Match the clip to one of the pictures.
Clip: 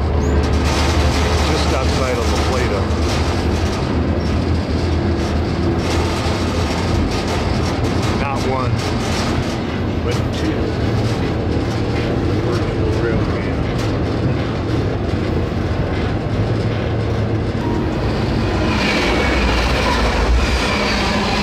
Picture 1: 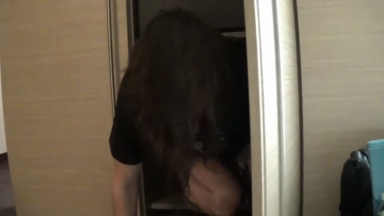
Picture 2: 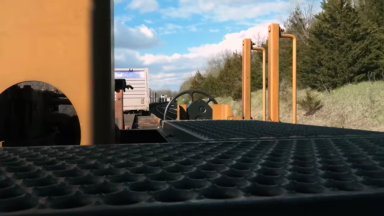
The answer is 2